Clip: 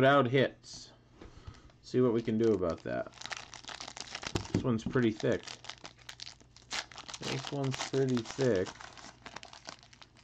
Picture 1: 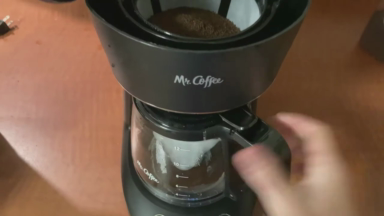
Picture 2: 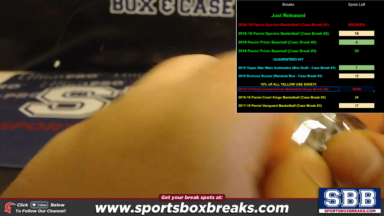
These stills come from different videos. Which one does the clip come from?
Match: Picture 2